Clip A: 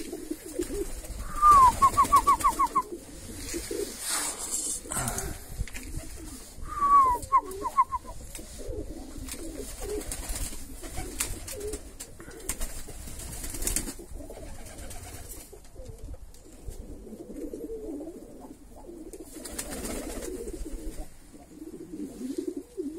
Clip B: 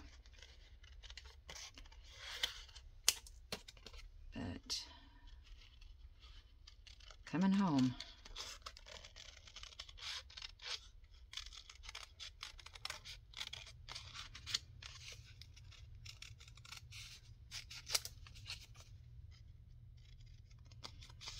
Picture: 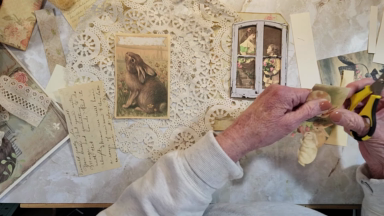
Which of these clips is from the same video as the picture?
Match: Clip B